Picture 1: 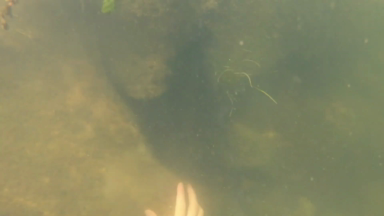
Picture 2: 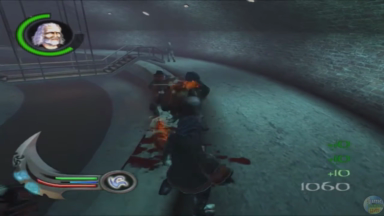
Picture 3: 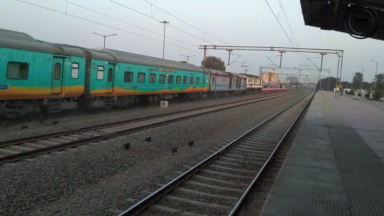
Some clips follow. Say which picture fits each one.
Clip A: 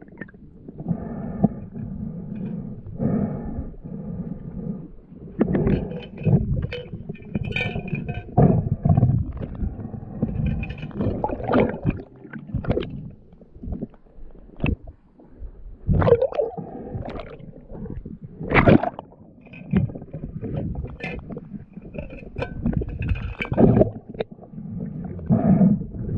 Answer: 1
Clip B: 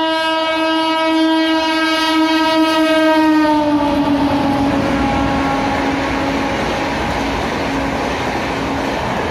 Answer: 3